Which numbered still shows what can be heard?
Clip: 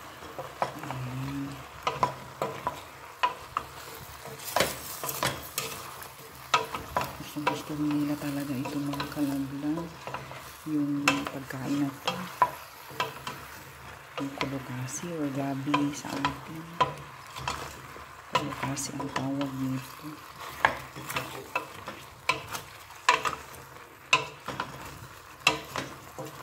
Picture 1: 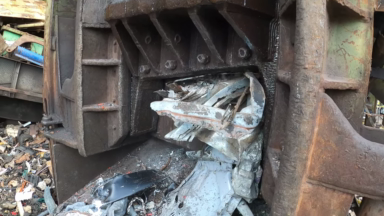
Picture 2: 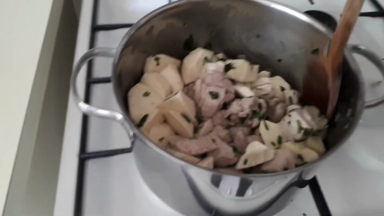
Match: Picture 2